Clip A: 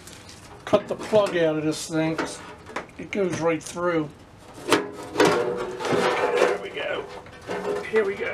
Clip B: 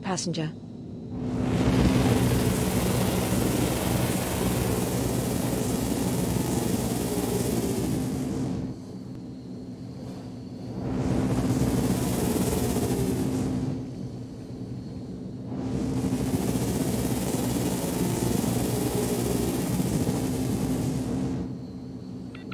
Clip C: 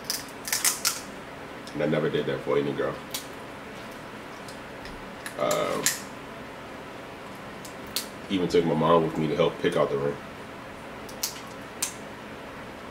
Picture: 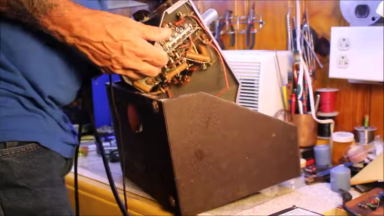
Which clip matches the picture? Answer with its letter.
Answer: A